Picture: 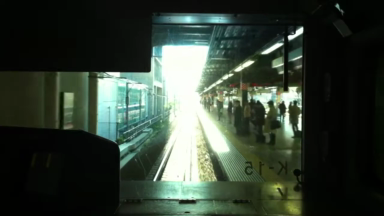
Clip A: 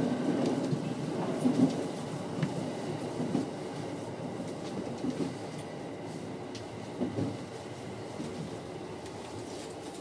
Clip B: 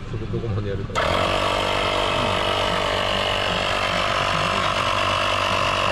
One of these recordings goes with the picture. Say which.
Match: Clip A